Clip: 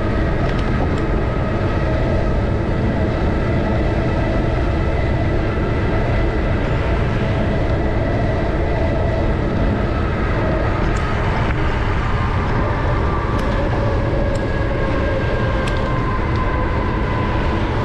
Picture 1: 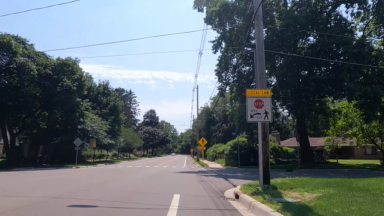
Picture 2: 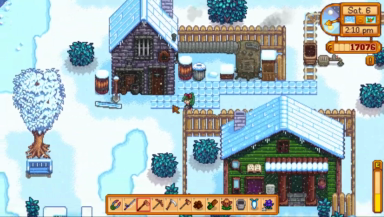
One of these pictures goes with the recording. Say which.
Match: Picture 1